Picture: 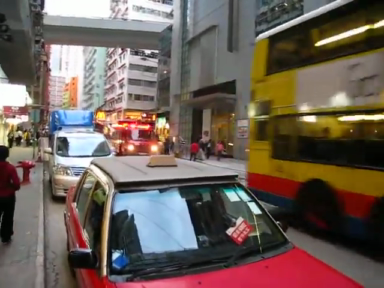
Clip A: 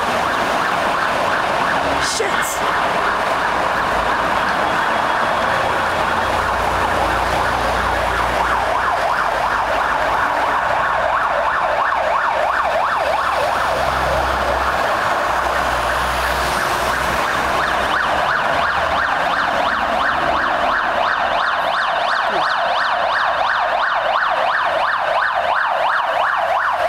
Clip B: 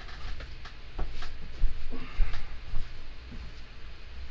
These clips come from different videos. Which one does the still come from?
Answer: A